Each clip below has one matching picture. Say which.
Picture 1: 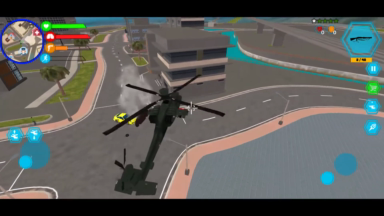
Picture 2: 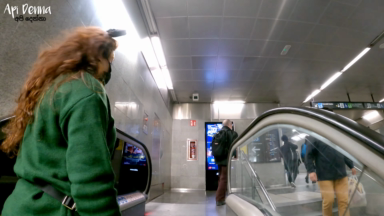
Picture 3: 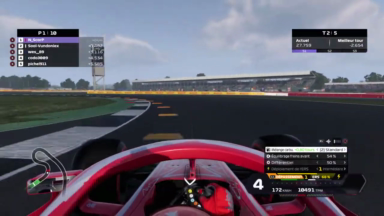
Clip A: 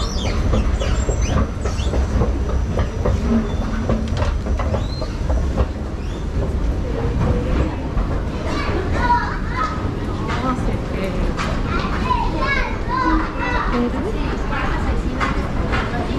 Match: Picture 2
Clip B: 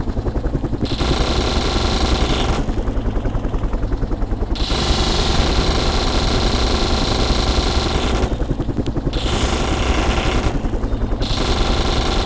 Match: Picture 1